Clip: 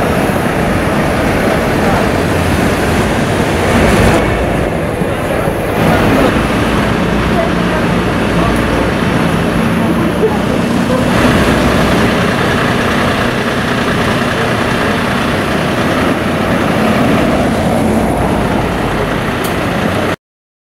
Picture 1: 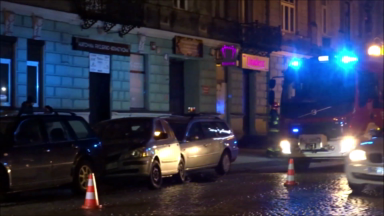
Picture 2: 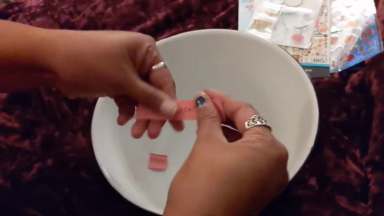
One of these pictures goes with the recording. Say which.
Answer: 1